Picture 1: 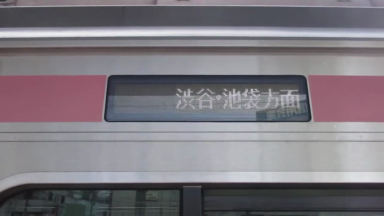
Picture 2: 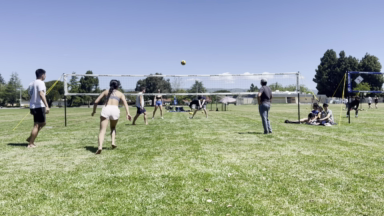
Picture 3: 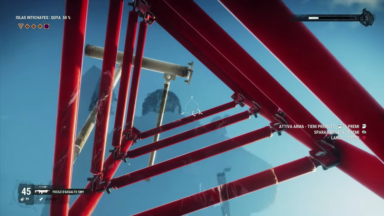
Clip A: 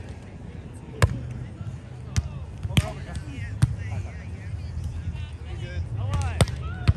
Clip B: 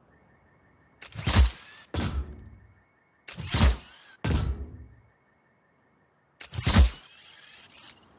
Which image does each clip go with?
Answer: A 2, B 3